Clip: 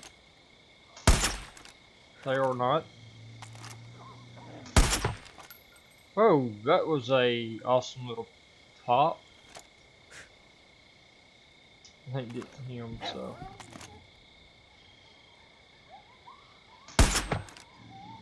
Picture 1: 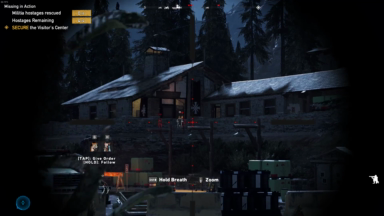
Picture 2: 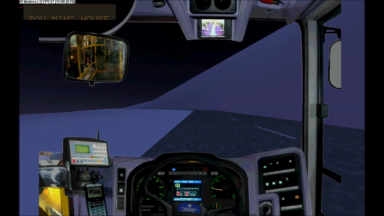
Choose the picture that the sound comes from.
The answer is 1